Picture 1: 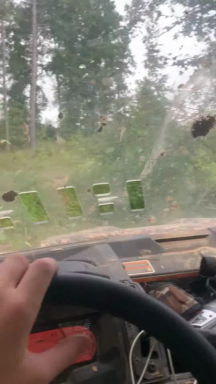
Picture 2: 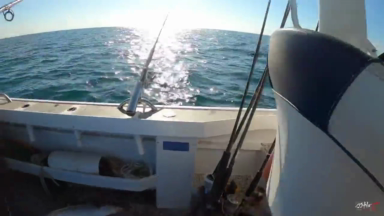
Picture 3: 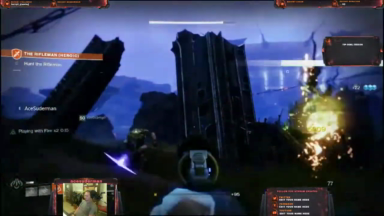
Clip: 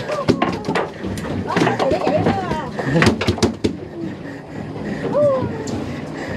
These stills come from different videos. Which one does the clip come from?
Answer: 2